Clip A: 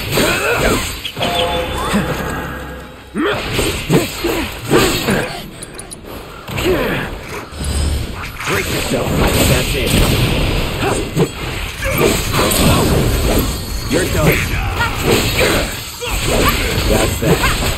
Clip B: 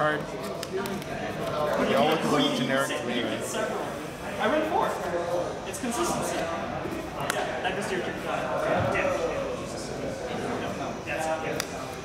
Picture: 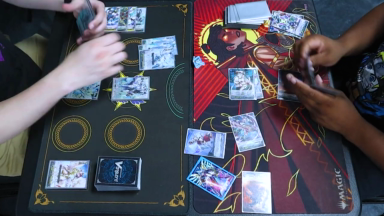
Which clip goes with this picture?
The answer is B